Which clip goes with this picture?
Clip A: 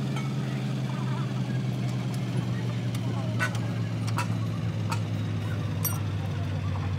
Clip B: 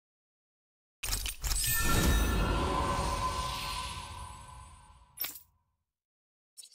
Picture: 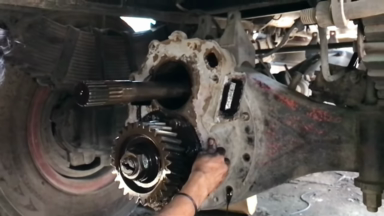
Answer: A